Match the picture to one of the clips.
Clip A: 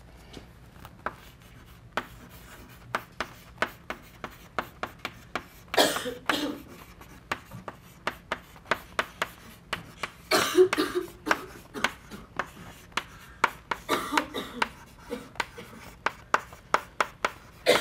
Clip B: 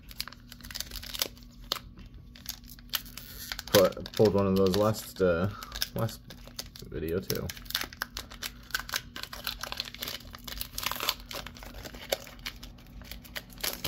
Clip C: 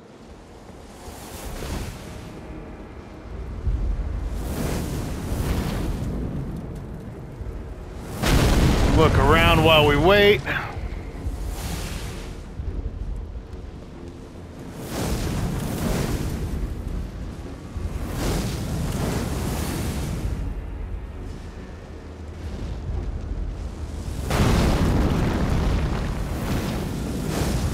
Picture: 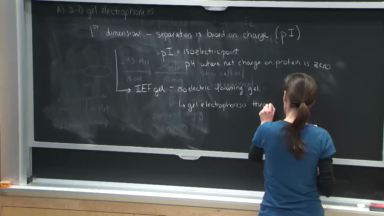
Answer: A